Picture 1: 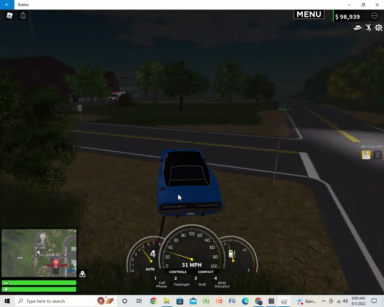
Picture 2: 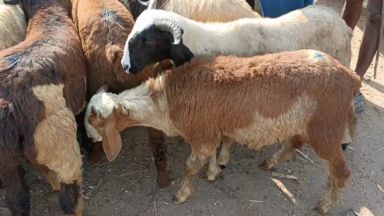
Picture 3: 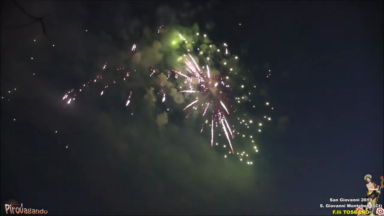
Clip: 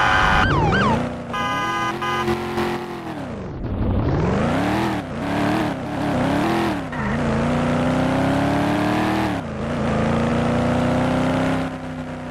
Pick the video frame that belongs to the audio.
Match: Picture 1